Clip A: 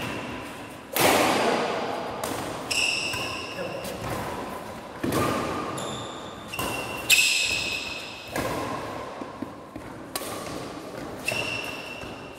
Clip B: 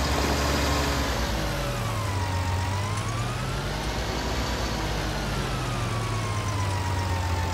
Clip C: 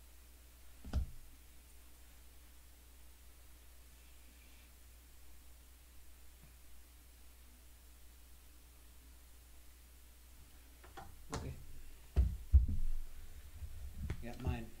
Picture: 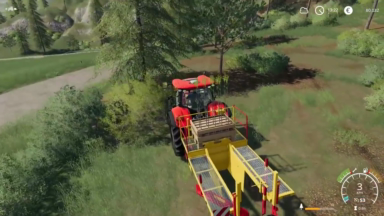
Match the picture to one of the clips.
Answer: B